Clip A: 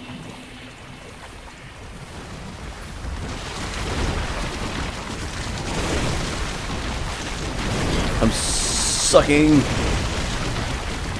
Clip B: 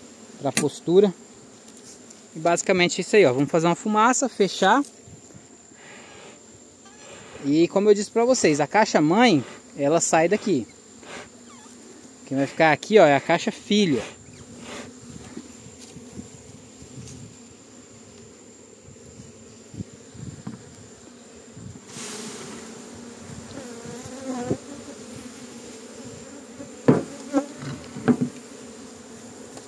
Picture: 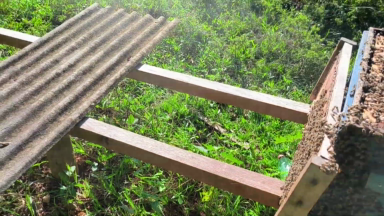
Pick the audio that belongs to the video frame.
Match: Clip B